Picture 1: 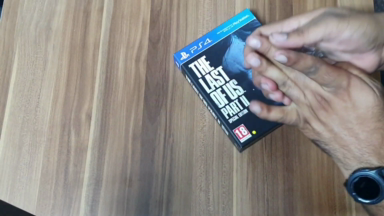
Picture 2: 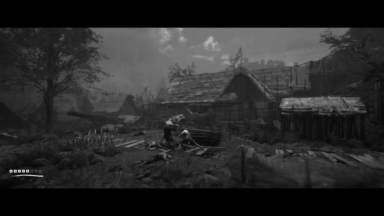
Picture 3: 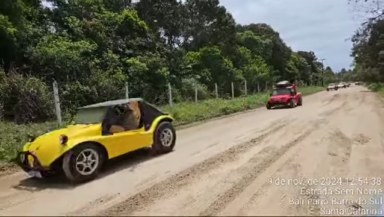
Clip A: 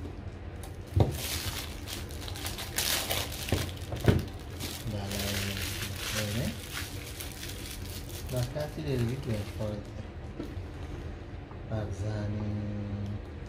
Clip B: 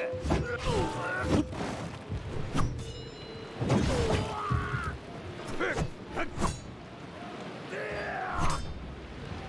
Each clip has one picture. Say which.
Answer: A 1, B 2